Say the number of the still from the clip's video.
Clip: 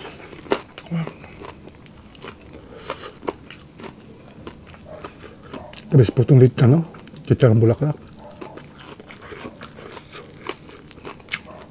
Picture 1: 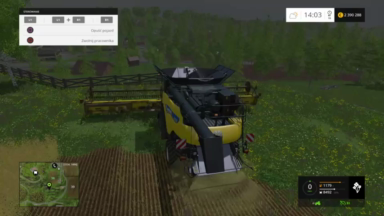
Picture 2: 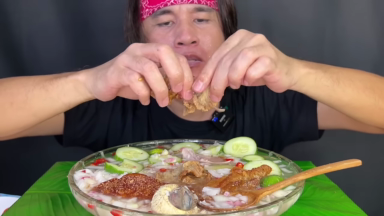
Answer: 2